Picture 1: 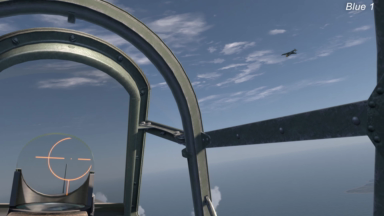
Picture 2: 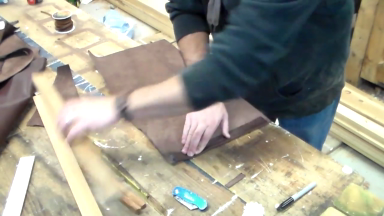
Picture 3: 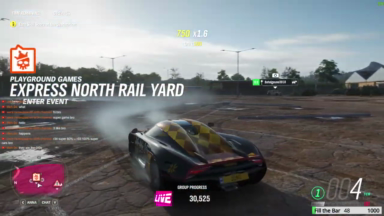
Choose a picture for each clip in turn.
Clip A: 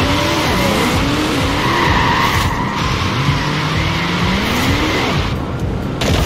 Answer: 3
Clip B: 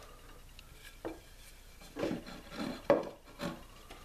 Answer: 2